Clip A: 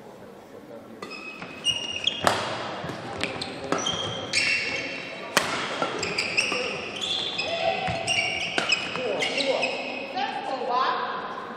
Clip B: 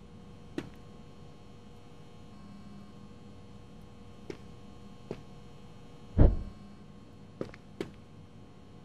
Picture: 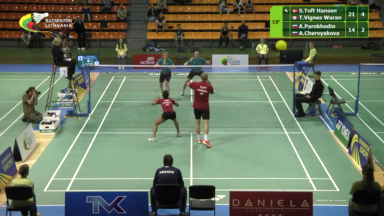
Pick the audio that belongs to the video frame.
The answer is A